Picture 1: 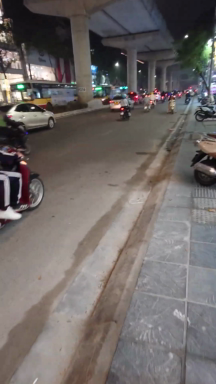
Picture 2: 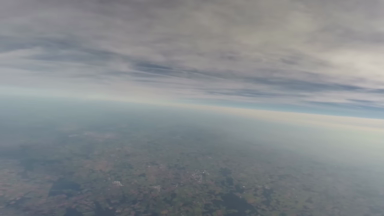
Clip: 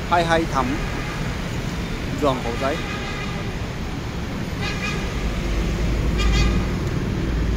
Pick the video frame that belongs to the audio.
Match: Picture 1